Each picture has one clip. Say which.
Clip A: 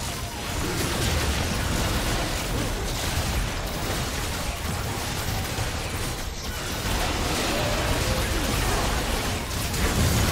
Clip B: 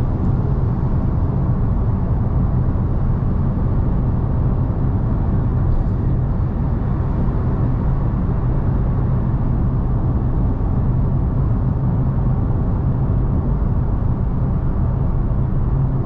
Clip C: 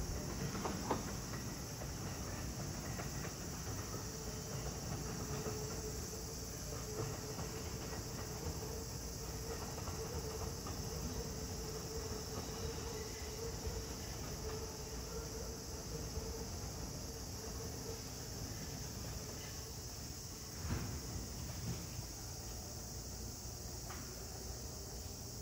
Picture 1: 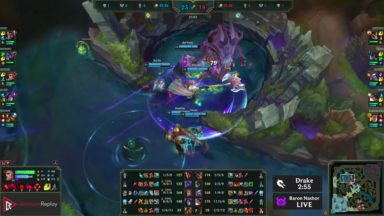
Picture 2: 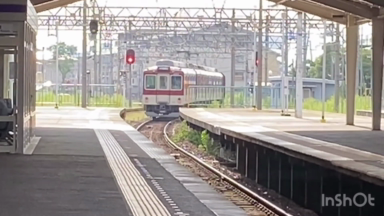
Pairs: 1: A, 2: C